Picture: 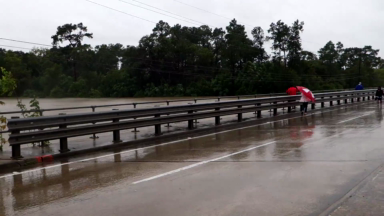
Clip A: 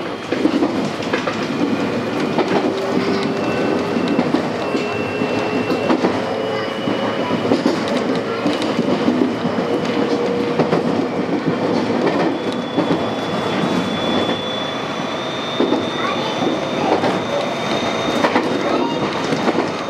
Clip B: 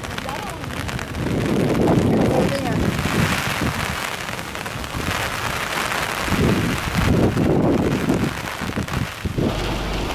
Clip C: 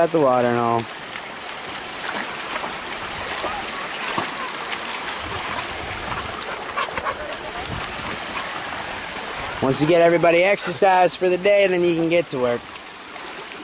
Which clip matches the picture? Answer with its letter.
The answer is B